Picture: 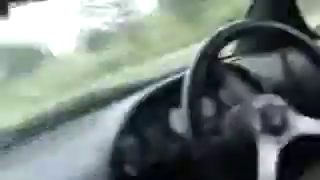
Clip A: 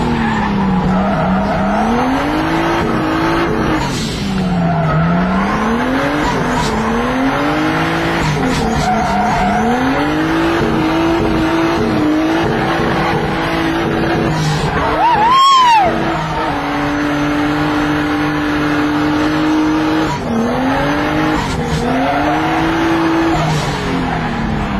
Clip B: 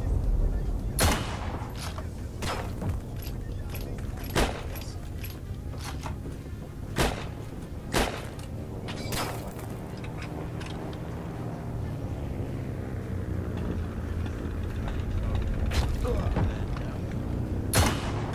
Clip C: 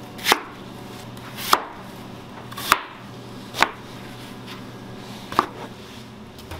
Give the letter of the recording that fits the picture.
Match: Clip A